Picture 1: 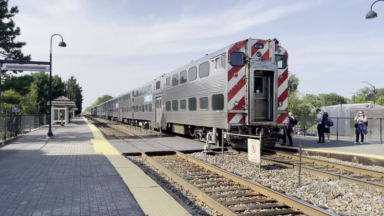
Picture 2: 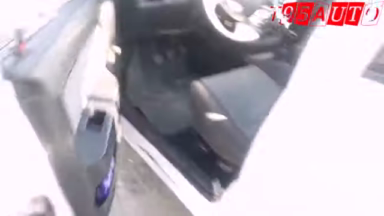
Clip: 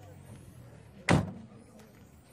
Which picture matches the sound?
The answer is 2